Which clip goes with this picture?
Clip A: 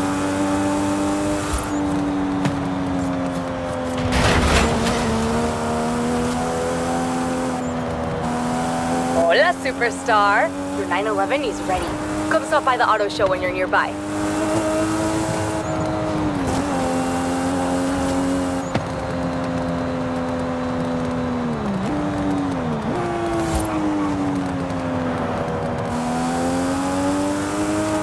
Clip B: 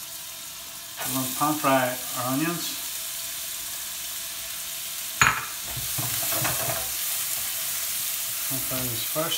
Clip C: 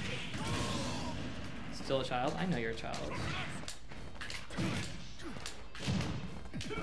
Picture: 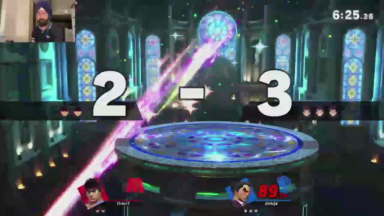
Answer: C